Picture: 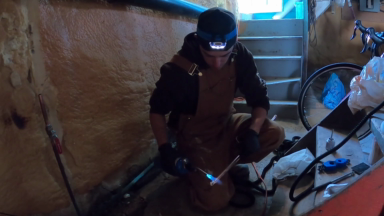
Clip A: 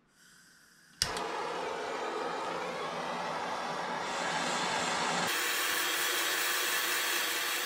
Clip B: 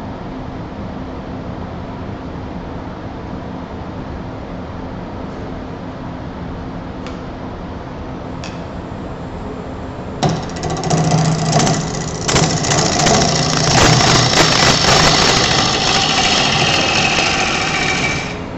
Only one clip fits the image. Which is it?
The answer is A